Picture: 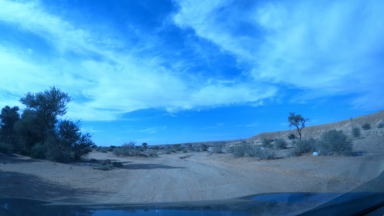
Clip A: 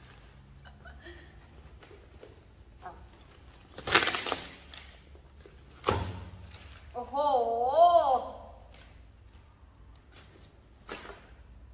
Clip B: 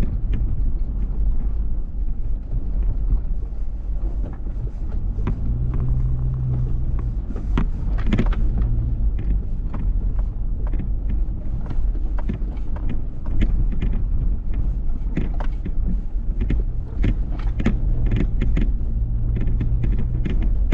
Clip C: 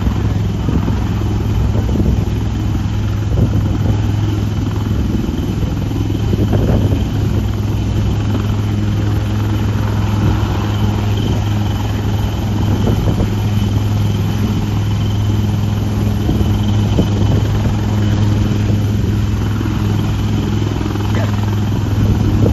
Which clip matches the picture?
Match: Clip B